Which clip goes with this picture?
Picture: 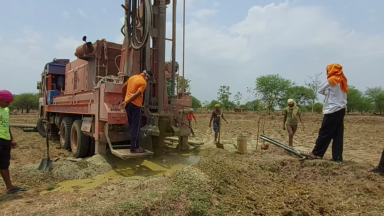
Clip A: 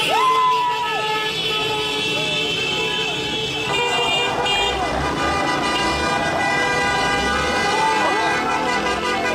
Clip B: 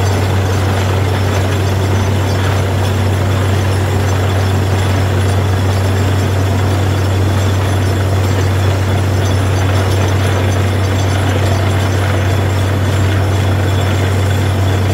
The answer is B